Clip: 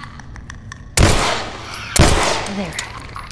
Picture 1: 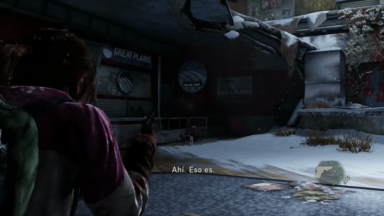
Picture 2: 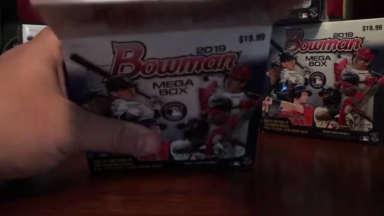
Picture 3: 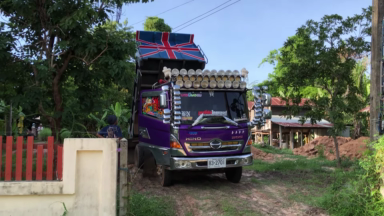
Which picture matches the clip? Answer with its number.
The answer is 1